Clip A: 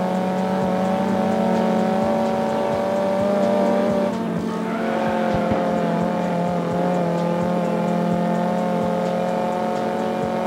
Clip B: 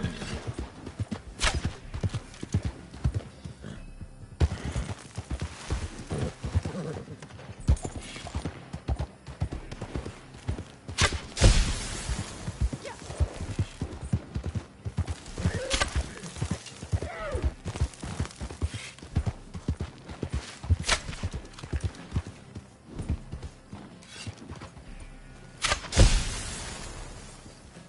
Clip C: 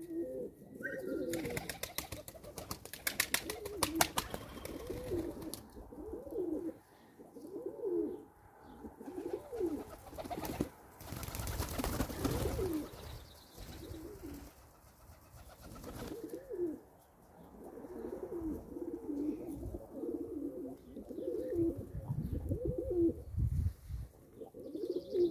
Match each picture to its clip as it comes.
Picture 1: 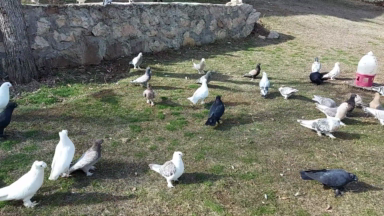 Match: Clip C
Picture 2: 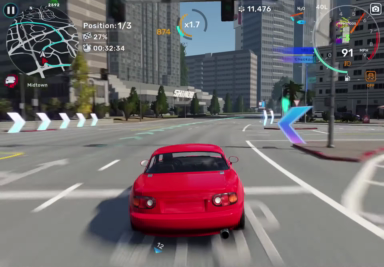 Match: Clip A